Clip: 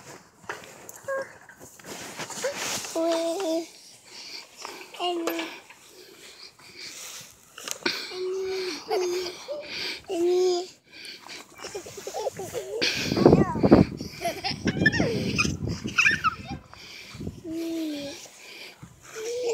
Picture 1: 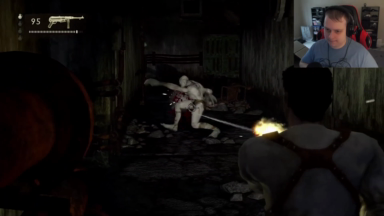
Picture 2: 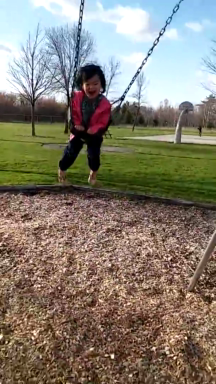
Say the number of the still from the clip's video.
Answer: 2